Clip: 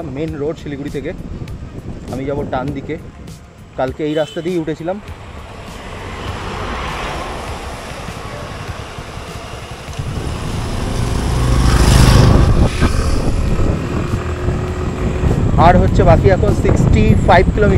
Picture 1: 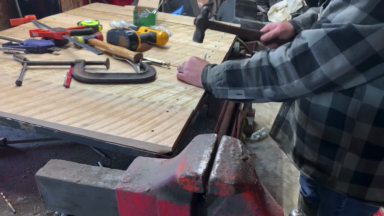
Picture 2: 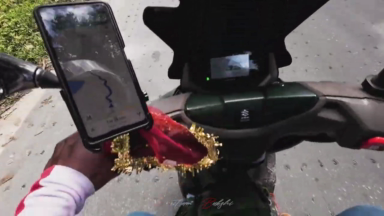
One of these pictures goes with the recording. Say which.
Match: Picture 2